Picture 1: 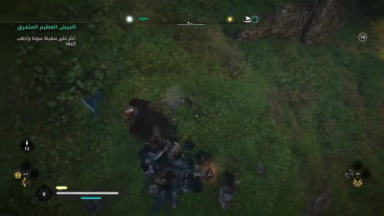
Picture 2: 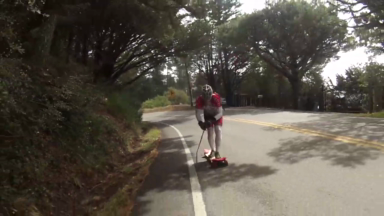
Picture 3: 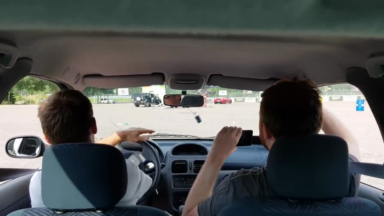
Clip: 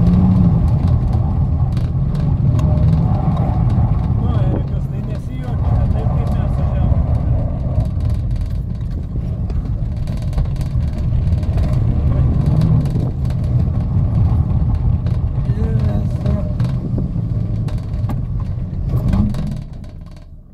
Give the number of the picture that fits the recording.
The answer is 3